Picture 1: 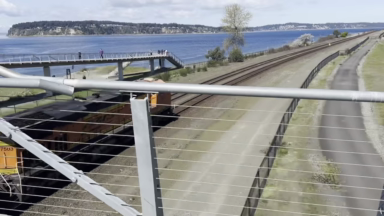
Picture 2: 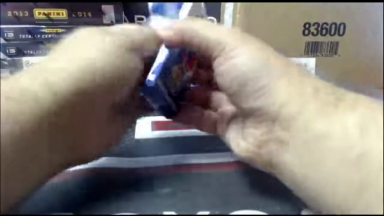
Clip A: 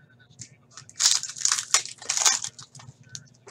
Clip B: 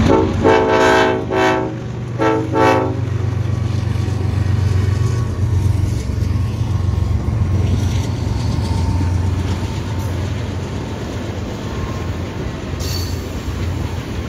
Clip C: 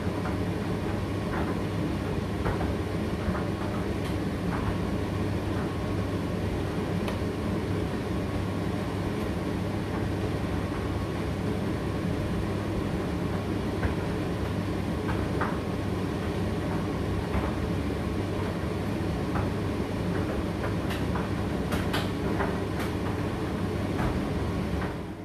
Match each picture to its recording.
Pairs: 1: B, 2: A